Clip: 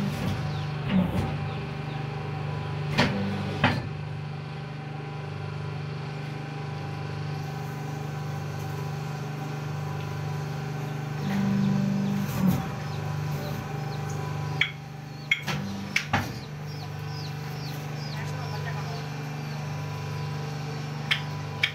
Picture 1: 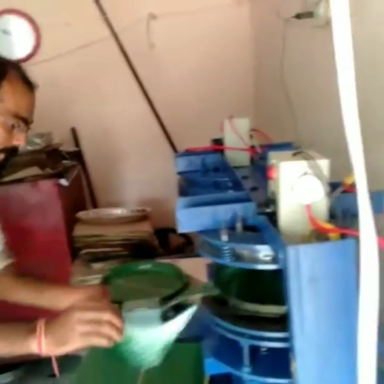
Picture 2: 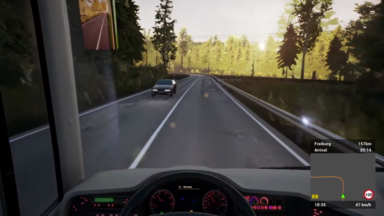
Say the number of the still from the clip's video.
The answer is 1